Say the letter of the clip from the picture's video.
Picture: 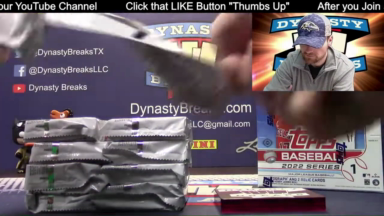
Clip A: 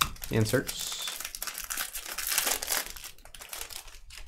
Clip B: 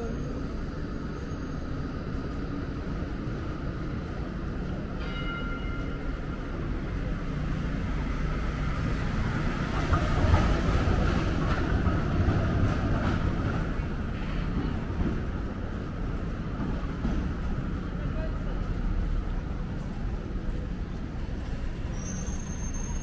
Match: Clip A